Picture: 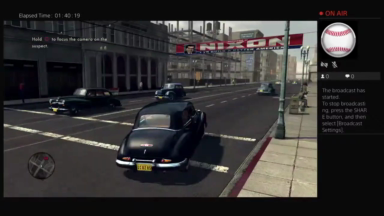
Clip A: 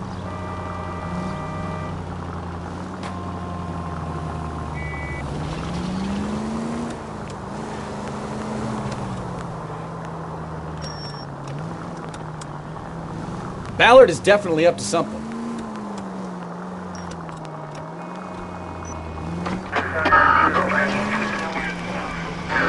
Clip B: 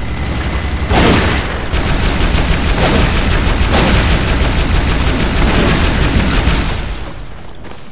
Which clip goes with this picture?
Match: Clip A